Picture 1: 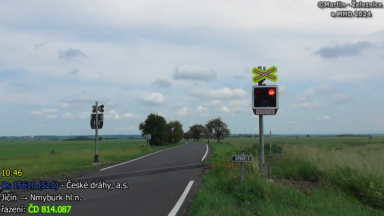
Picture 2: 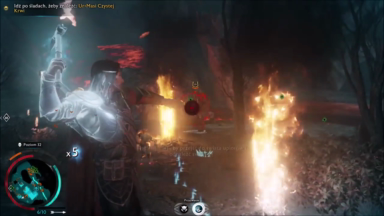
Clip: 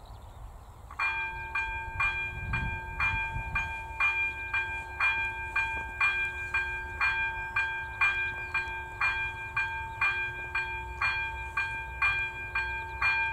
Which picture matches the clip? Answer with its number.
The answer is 1